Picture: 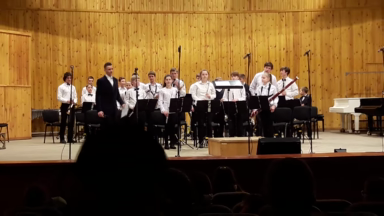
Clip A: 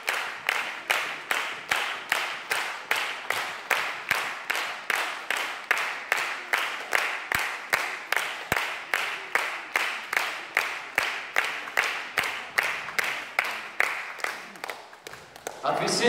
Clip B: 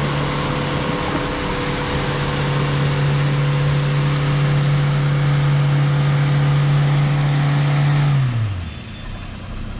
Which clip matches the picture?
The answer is A